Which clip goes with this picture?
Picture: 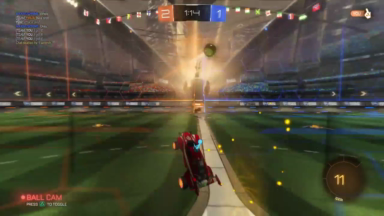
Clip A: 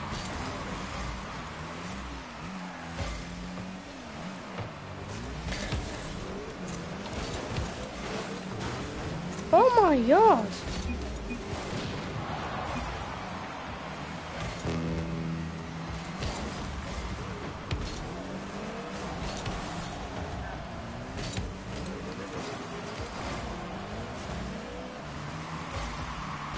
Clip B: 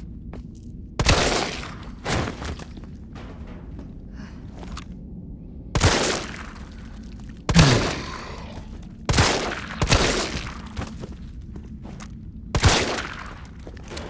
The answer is A